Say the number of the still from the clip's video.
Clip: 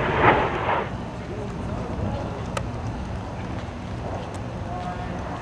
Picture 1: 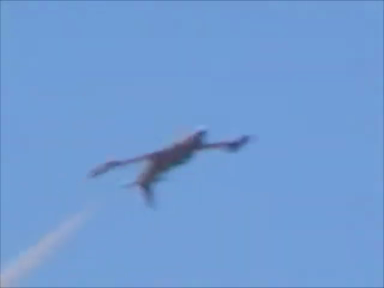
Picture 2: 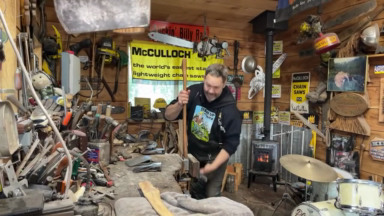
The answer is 1